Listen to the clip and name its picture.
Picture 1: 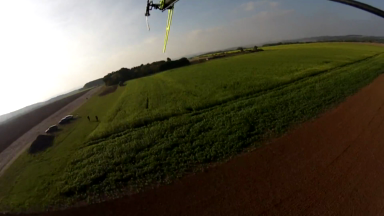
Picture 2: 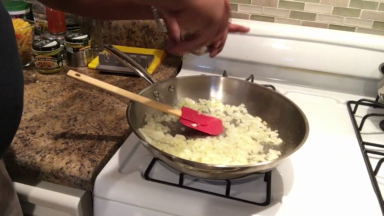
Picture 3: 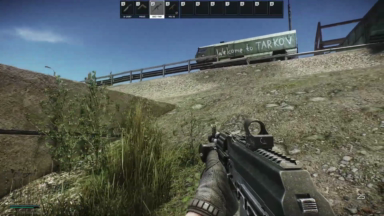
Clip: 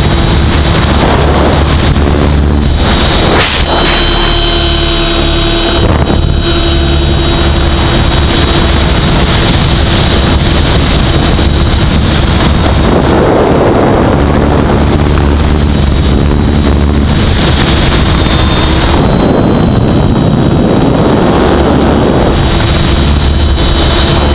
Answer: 1